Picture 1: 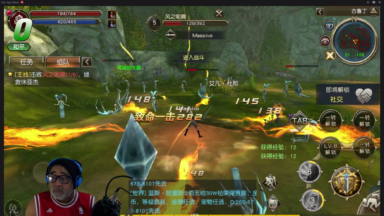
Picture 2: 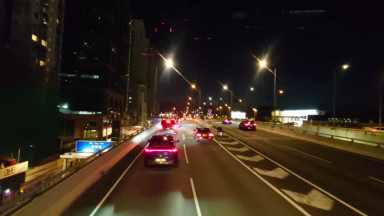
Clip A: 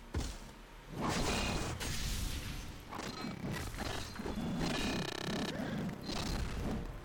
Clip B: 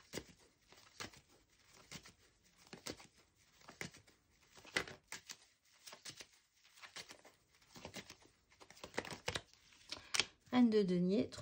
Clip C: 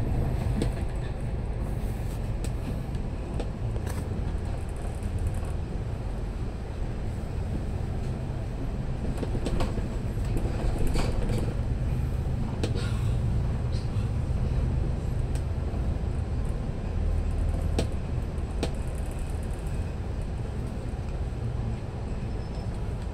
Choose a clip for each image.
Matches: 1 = A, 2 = C